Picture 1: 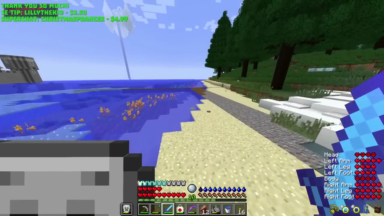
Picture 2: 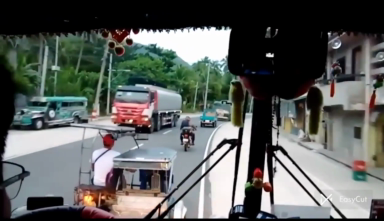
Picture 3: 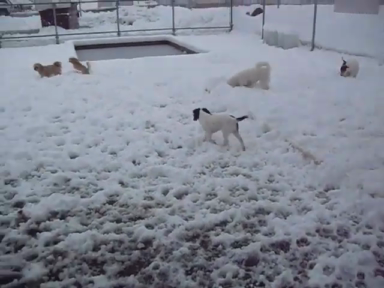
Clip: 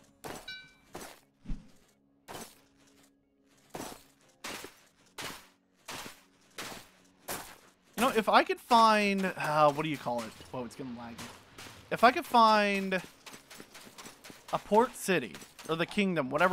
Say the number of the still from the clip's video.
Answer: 1